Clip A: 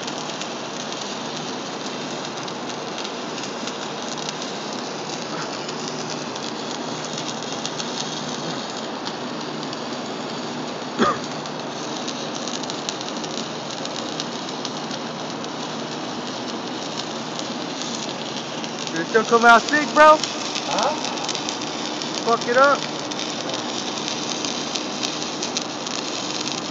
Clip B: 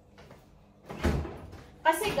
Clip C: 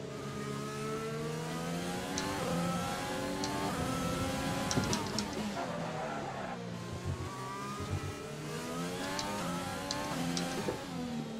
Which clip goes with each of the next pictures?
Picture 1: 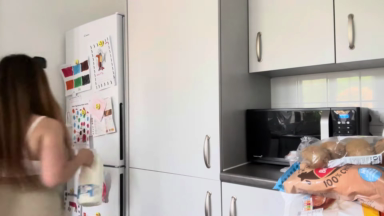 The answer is B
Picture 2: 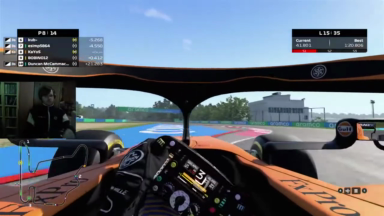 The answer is C